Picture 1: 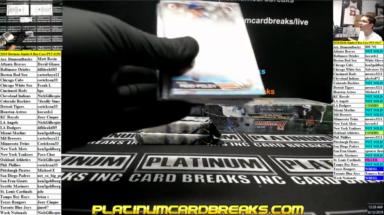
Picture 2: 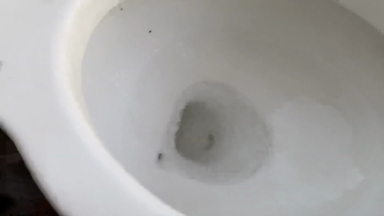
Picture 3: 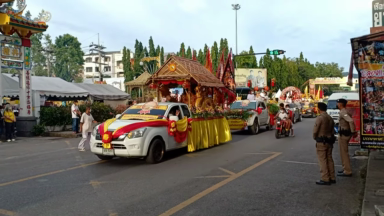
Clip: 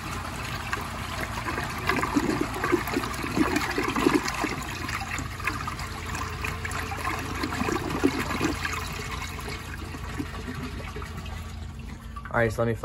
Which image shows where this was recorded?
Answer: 2